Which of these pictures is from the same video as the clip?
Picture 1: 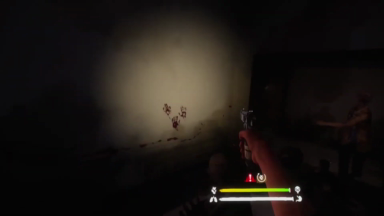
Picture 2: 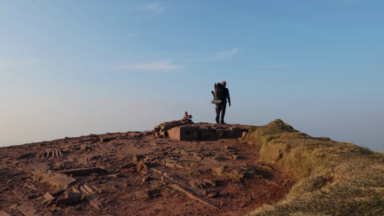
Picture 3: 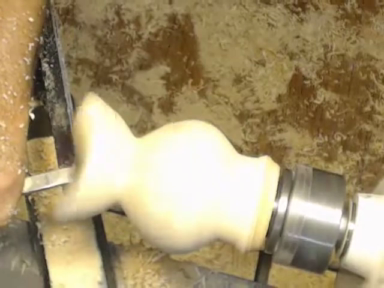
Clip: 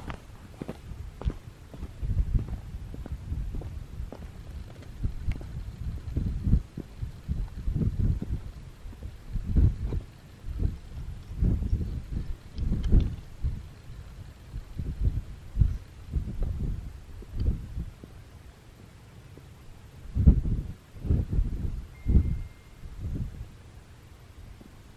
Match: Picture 2